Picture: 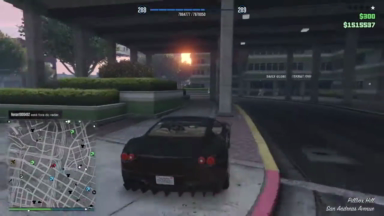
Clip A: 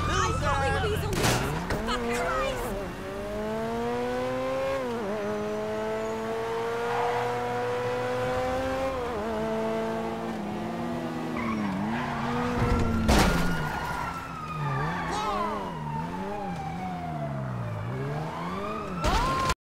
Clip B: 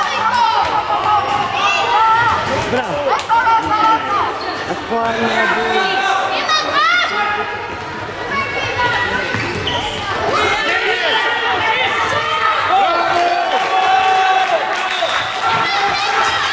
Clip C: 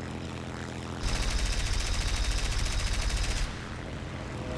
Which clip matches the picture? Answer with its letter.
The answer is A